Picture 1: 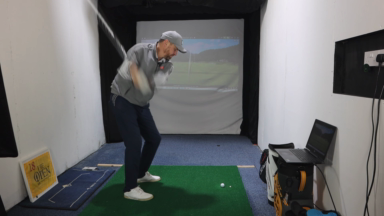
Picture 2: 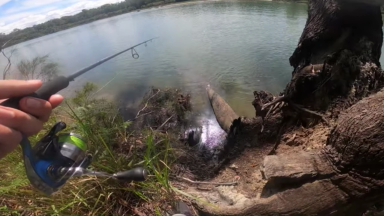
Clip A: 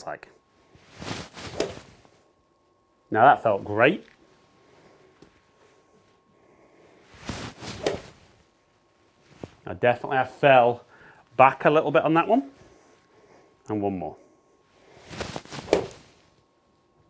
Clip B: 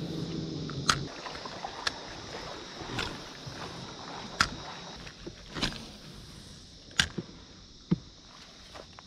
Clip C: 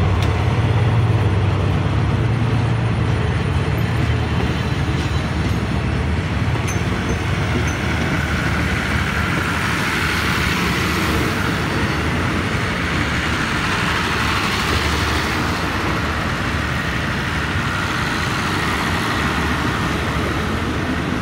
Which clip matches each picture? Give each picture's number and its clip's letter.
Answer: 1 A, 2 B